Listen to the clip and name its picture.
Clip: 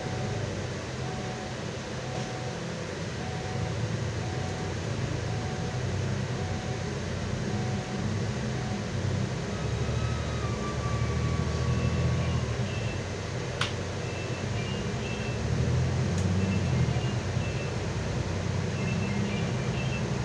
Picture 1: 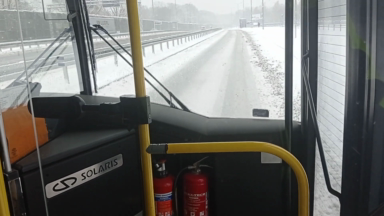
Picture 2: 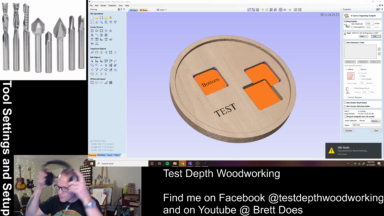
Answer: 1